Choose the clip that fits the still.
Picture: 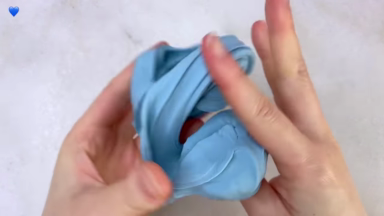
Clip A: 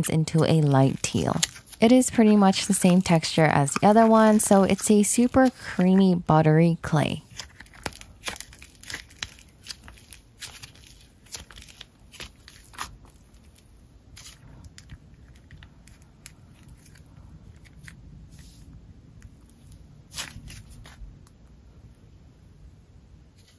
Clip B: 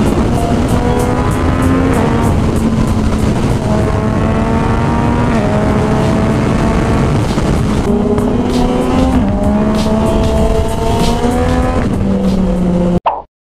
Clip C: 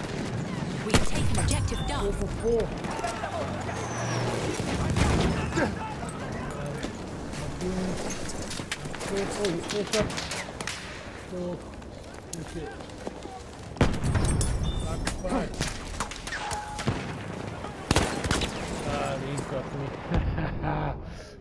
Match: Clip A